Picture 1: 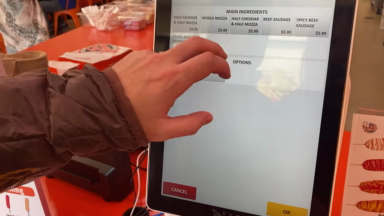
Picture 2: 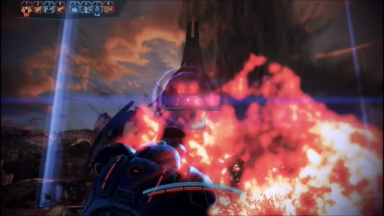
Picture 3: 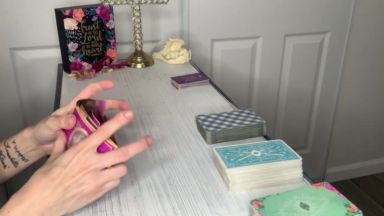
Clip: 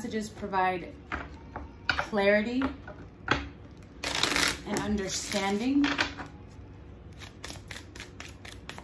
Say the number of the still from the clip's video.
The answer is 3